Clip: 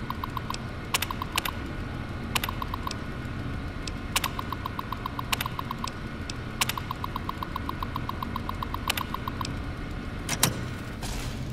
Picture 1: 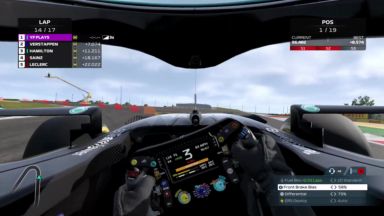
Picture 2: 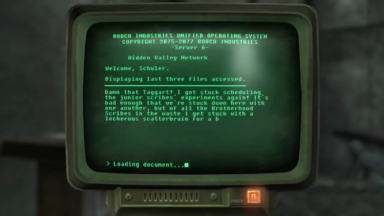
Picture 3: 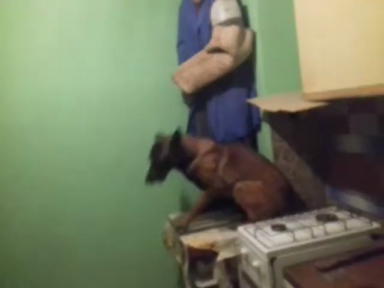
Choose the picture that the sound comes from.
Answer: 2